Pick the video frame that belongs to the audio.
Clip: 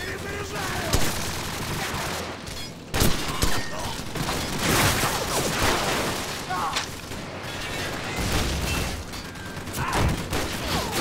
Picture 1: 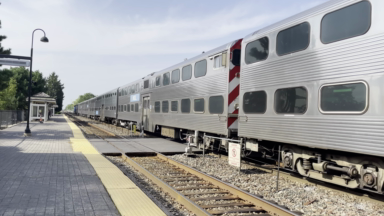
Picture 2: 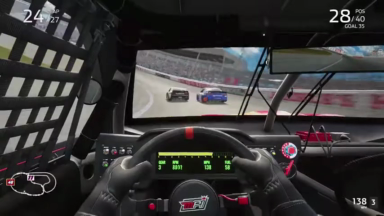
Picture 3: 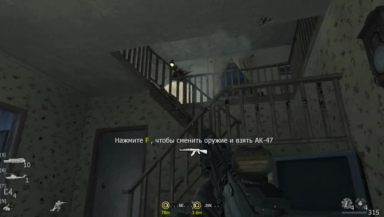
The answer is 3